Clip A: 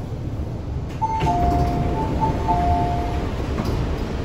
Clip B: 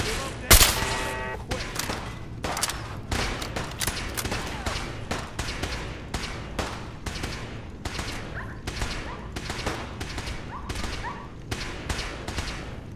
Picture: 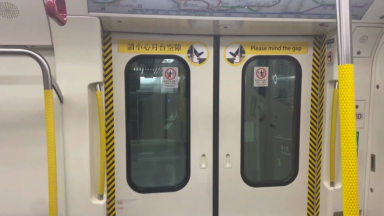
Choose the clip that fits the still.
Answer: A